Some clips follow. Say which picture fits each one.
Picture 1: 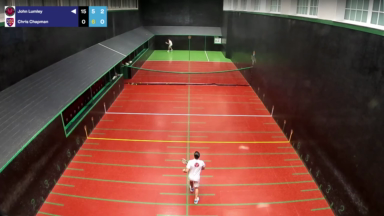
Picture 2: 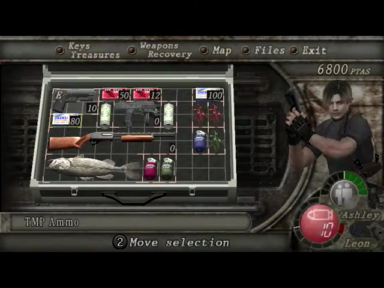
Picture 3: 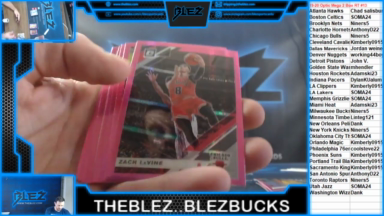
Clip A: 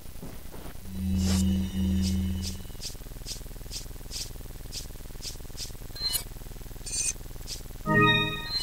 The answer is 2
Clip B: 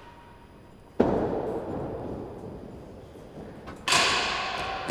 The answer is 1